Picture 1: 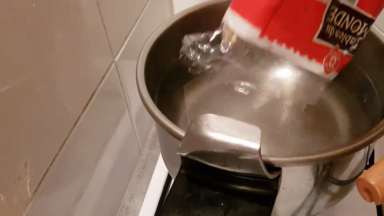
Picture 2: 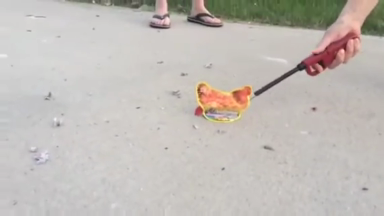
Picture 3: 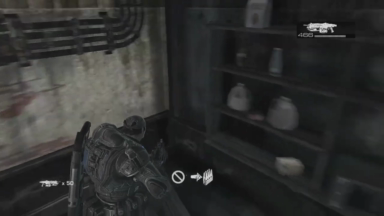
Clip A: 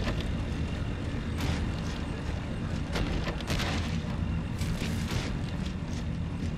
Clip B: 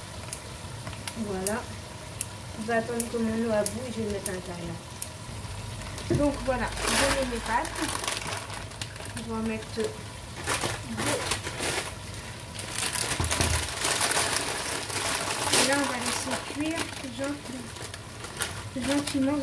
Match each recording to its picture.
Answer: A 3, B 1